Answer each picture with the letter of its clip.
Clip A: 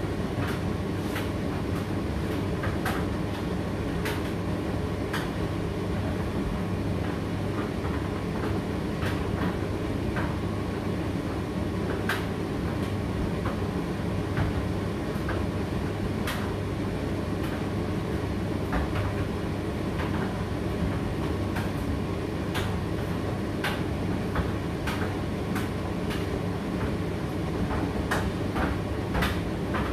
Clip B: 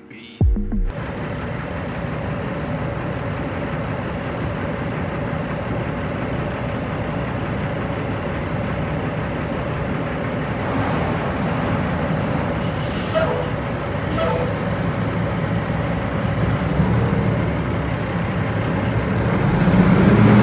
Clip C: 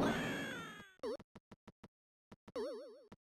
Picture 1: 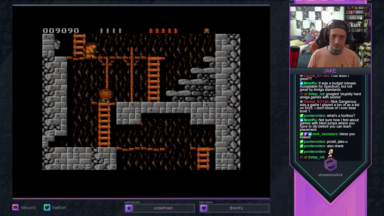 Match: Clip C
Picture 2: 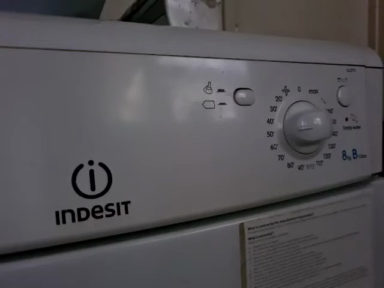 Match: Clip A